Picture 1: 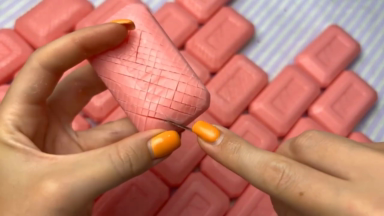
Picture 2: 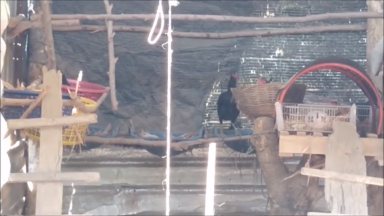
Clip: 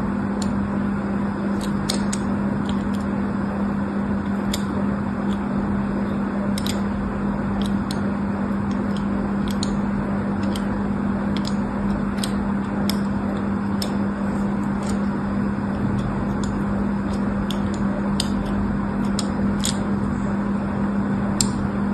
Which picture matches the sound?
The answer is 1